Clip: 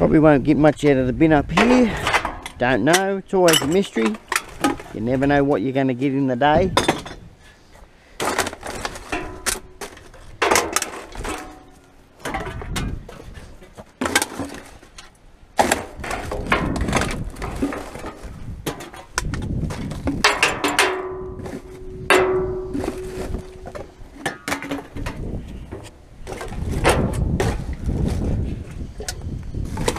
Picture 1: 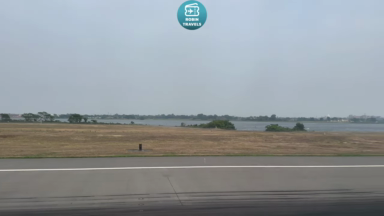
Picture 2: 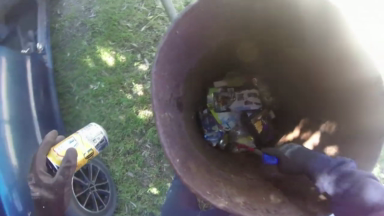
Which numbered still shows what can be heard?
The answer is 2